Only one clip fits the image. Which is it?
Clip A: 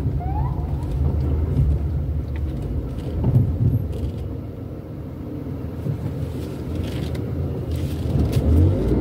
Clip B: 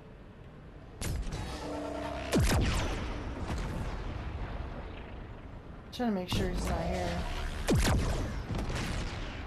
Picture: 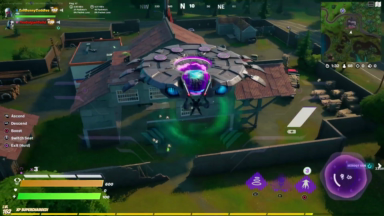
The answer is B